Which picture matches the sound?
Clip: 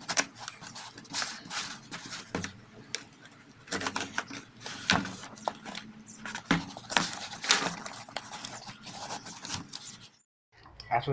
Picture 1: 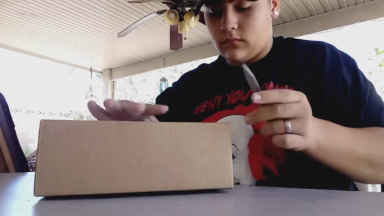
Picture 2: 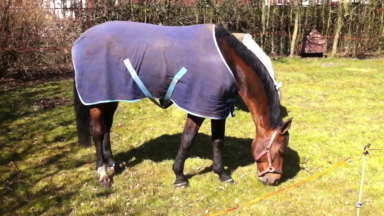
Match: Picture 1